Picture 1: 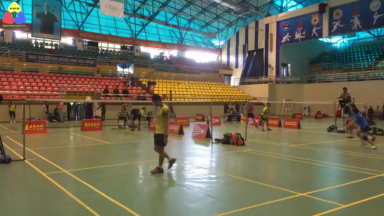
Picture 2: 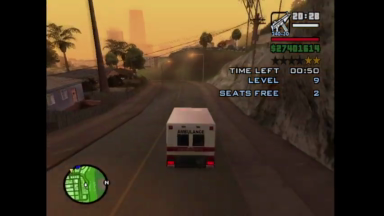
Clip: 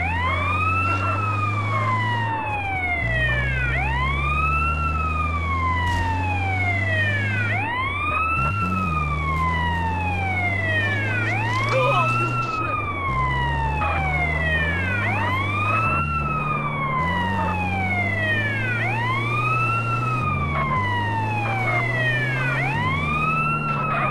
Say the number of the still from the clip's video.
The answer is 2